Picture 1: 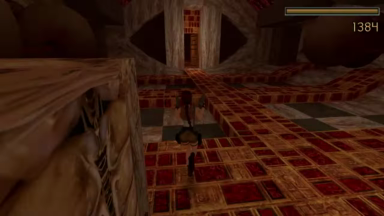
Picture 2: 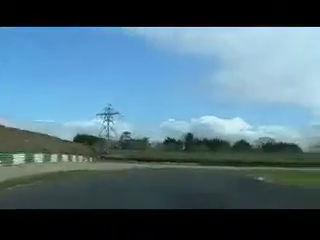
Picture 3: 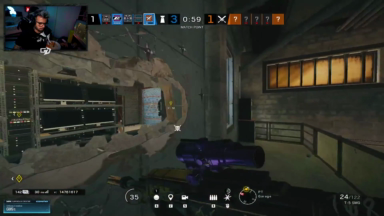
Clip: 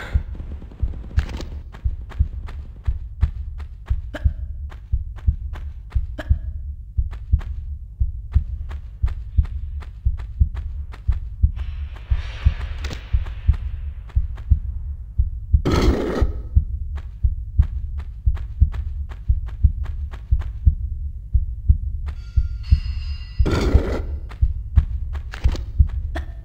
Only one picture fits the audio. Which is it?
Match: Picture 1